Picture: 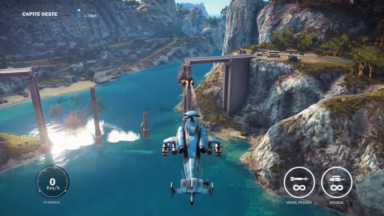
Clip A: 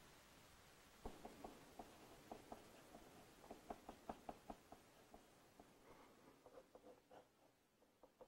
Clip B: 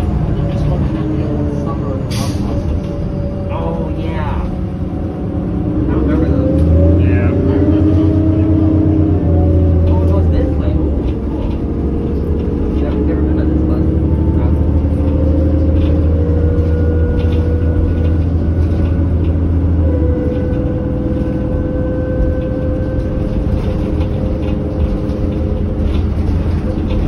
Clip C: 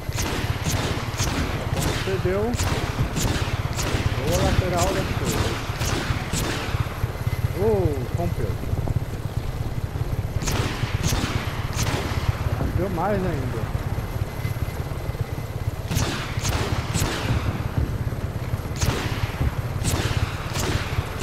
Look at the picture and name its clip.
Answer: C